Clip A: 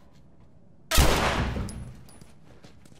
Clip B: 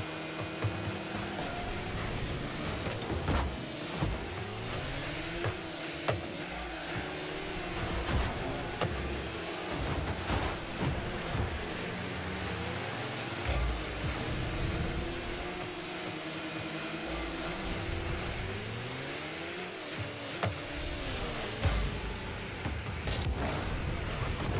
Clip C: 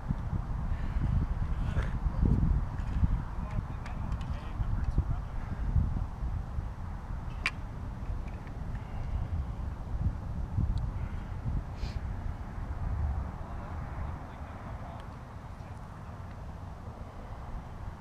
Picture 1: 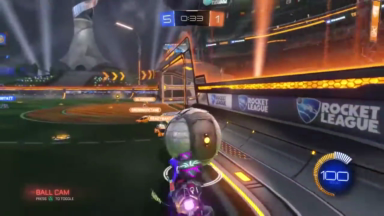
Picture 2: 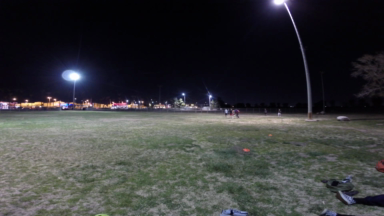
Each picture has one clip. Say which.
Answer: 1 B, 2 C